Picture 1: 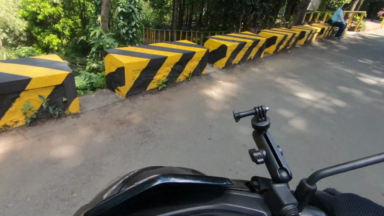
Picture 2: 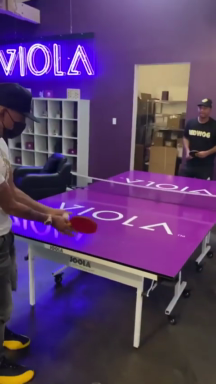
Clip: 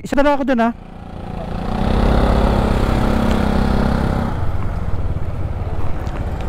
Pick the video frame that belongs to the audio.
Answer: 1